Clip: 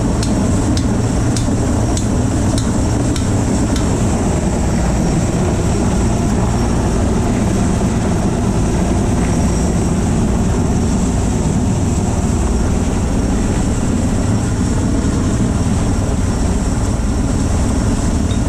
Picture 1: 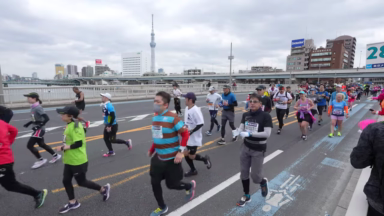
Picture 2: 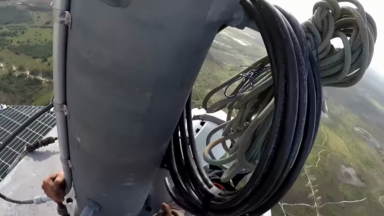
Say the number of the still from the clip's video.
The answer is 2